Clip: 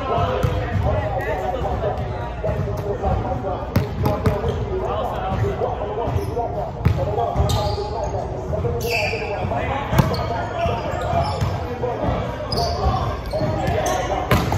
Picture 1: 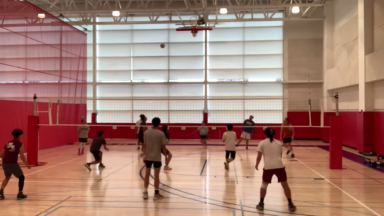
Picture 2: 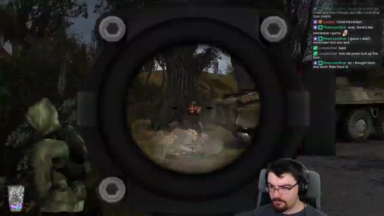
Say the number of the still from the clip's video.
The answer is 1